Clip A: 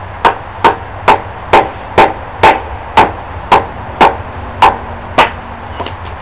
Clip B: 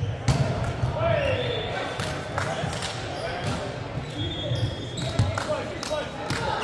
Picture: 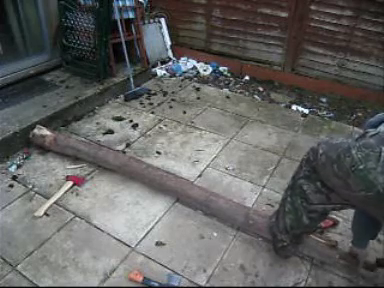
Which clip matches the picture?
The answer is A